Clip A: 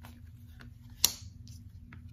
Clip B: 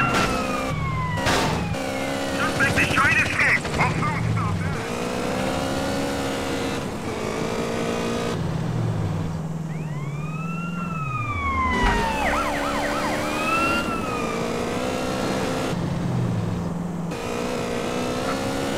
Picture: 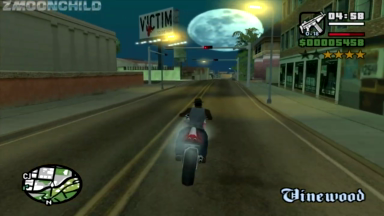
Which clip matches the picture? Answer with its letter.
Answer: B